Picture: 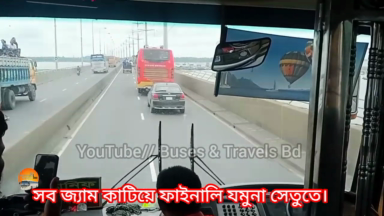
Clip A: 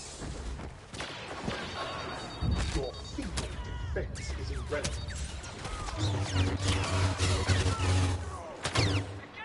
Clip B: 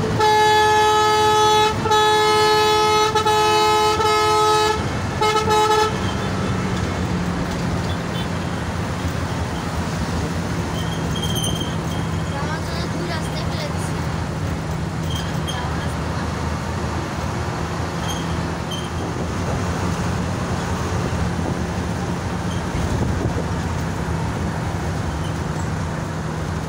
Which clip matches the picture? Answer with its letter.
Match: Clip B